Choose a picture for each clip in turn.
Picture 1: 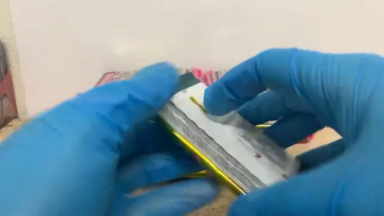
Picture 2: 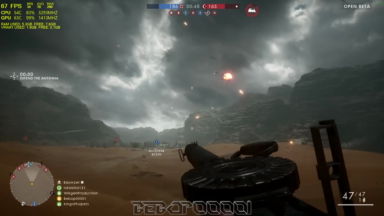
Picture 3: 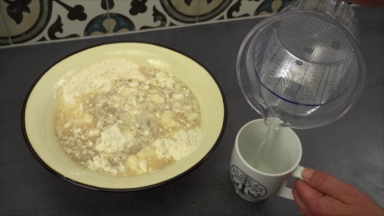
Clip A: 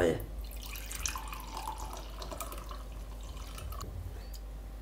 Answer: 3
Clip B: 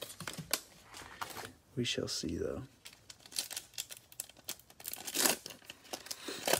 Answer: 1